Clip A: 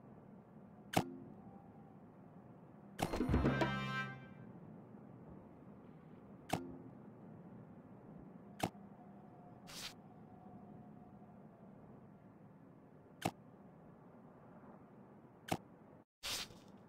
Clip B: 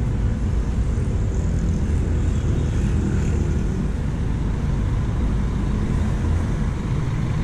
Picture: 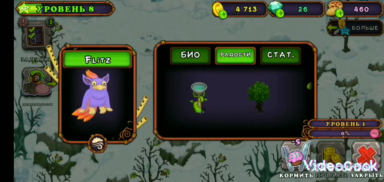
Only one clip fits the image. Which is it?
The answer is A